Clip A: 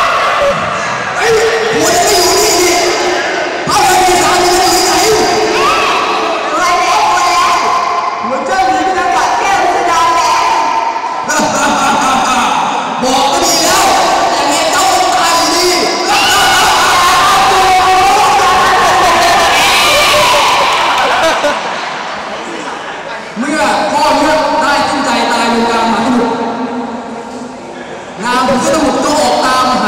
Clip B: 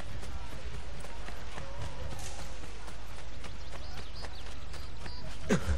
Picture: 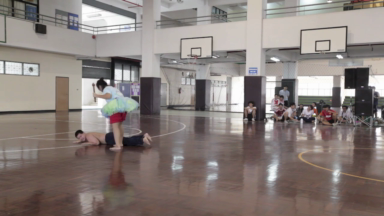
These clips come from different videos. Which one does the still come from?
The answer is A